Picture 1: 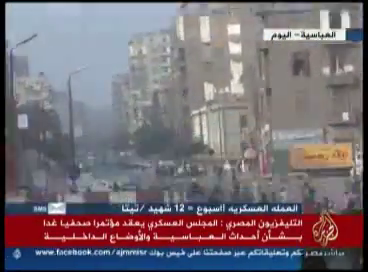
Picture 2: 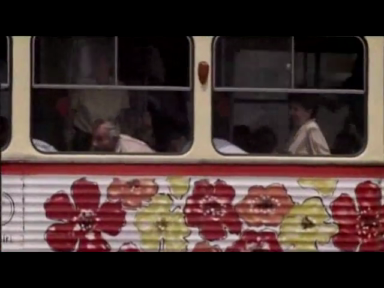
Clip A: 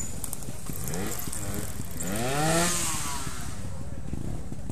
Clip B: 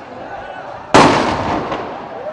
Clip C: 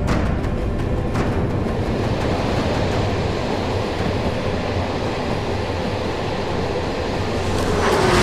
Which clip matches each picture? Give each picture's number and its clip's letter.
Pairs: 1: B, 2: C